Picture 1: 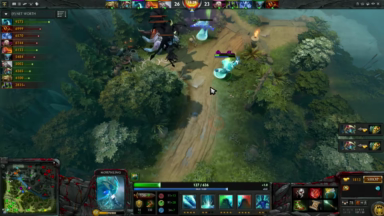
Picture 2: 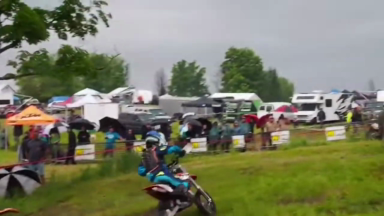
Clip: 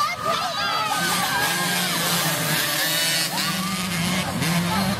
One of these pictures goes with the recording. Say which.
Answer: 2